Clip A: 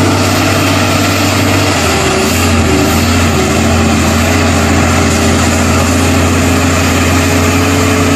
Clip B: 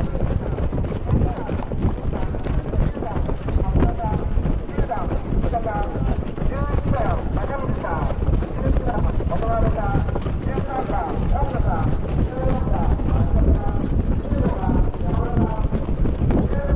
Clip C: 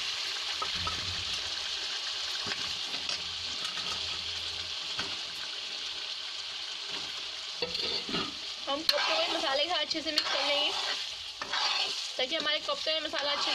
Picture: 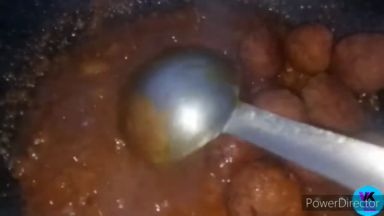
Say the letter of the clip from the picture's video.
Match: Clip C